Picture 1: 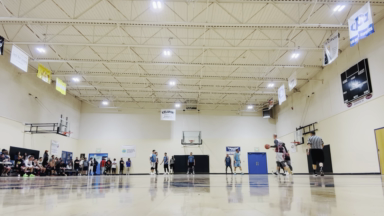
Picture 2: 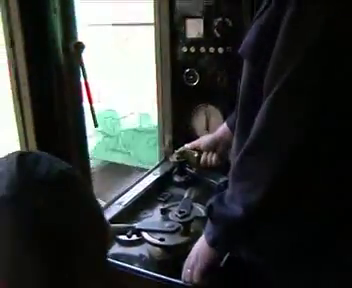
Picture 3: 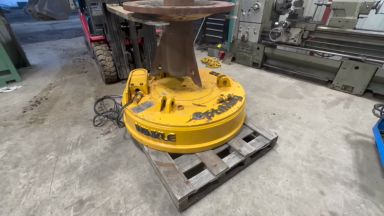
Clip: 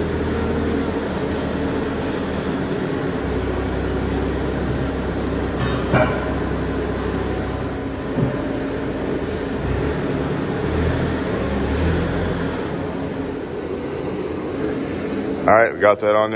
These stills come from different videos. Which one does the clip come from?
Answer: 3